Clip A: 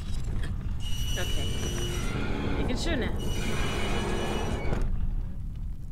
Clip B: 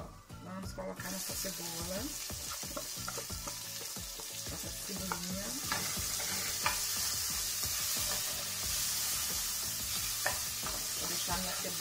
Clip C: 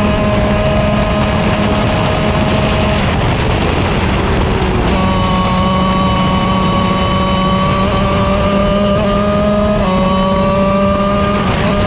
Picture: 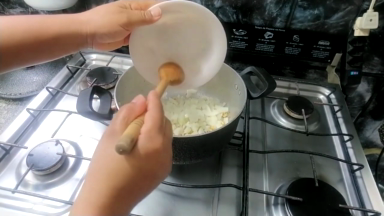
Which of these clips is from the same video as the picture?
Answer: B